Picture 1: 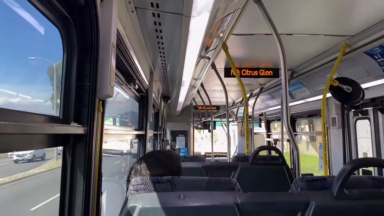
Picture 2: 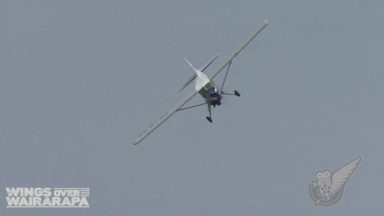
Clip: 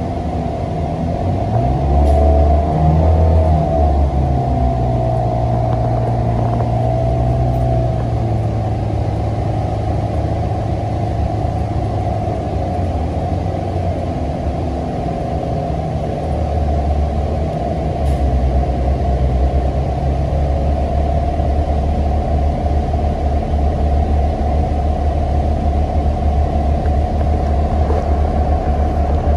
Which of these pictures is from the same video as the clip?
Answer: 1